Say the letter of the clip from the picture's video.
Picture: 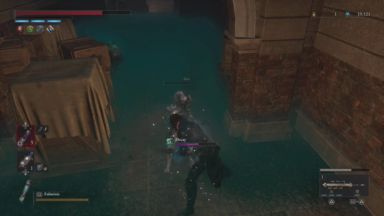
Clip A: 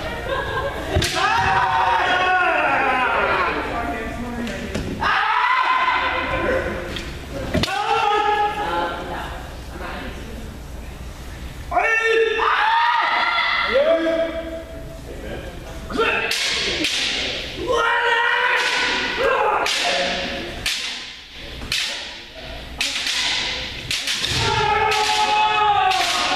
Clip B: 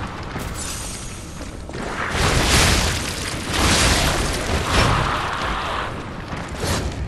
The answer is B